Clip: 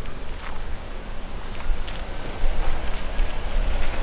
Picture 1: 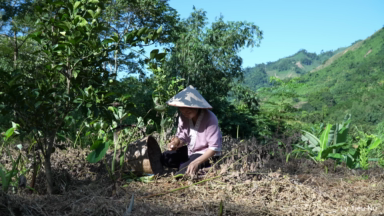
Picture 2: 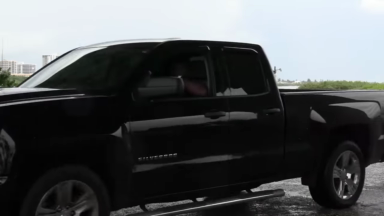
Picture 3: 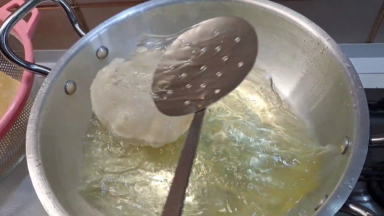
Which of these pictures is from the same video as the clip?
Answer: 2